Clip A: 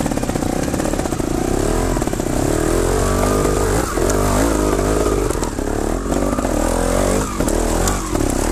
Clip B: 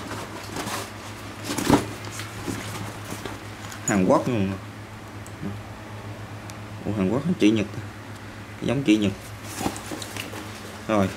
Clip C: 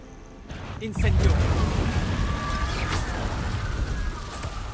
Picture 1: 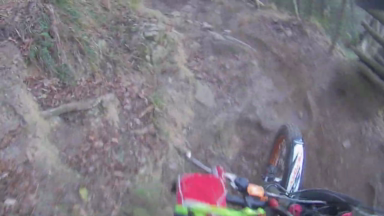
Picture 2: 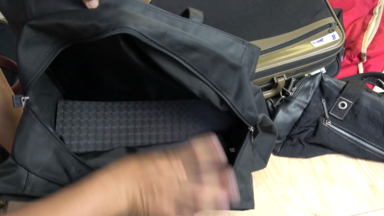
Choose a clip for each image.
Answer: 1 A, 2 B